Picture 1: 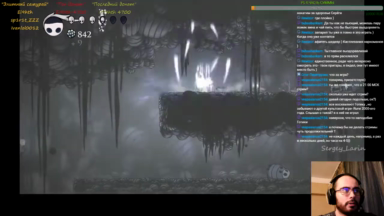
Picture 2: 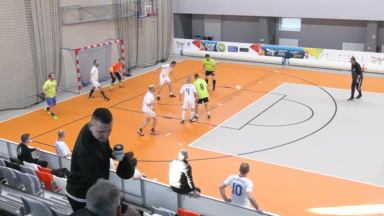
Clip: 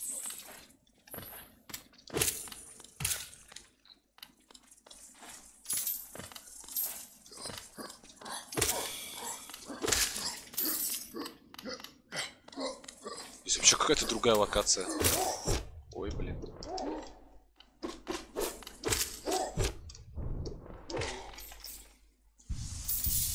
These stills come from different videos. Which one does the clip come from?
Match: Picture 1